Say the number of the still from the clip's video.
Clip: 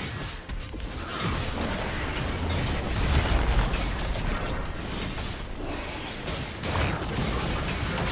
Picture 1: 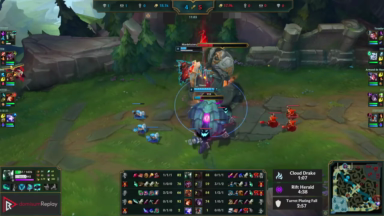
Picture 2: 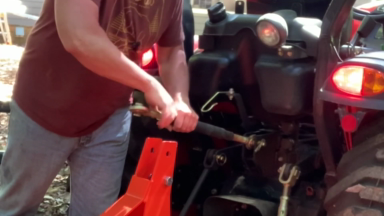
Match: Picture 1